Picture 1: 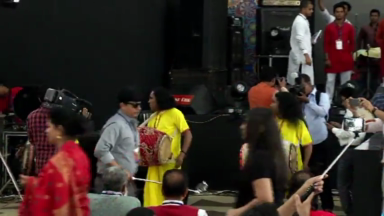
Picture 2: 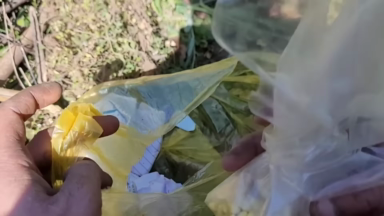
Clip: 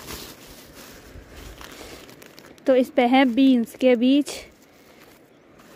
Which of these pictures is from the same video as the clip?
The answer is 2